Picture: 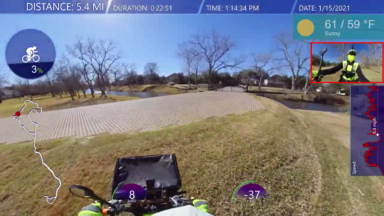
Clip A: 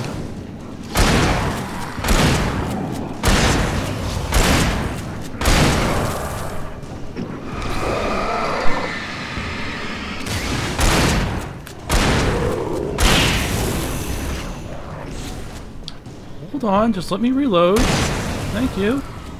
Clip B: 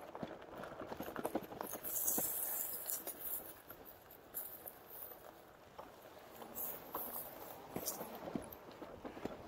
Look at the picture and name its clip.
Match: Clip B